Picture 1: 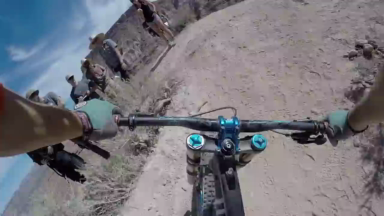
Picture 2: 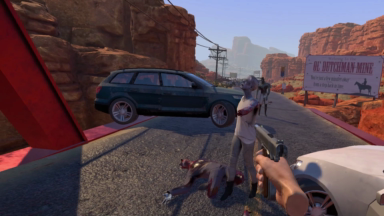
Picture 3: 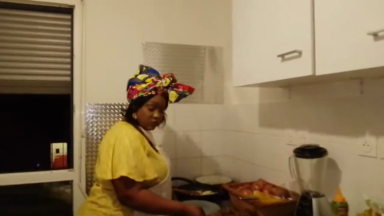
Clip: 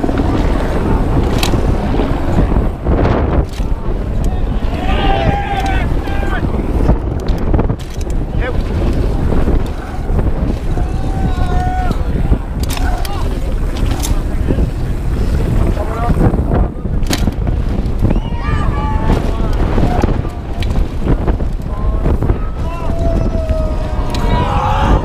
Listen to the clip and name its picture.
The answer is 1